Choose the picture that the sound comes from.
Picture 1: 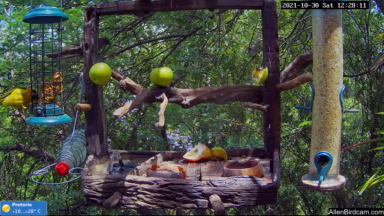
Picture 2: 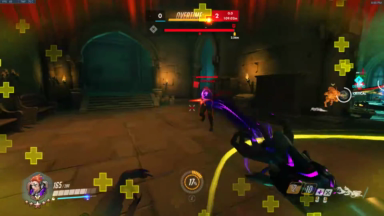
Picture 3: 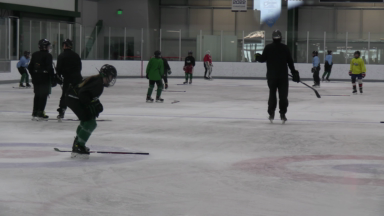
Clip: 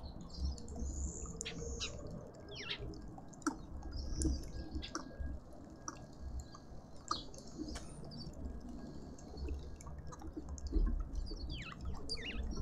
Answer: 1